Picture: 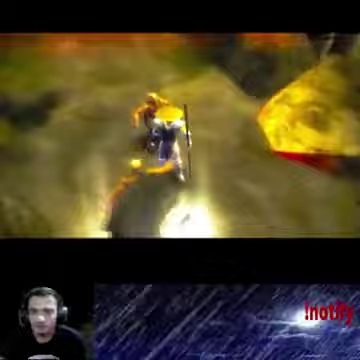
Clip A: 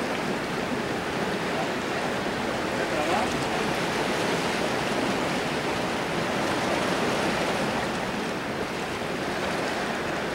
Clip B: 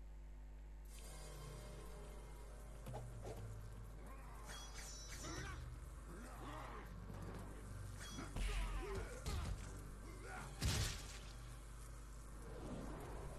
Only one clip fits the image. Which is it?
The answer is B